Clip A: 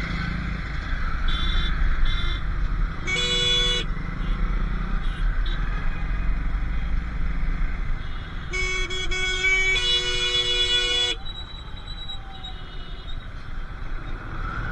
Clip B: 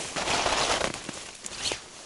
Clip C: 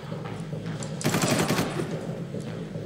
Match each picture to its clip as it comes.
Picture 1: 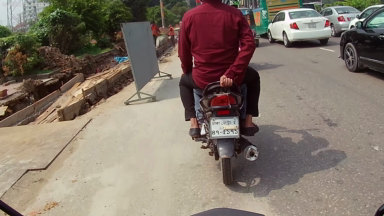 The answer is A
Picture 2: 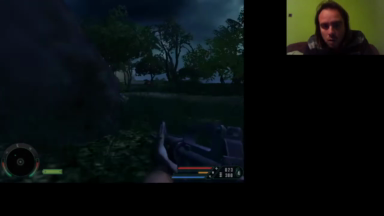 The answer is C